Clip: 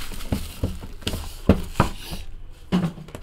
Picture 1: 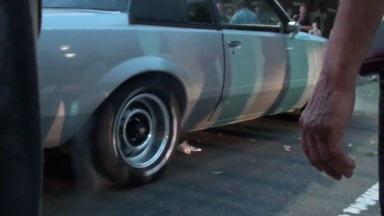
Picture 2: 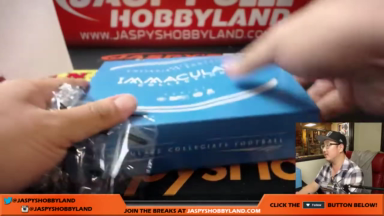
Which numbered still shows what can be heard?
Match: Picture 2